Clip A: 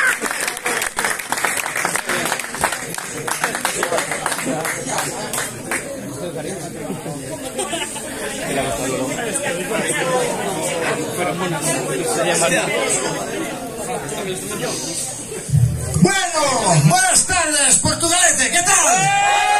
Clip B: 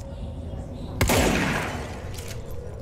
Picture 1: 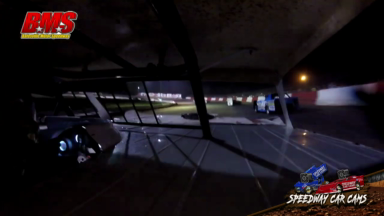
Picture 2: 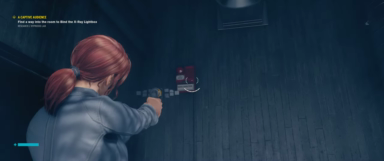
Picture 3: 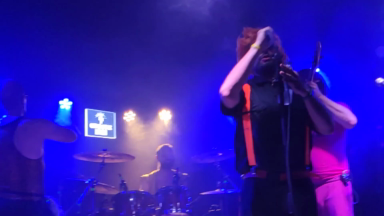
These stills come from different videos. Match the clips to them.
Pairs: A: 3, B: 2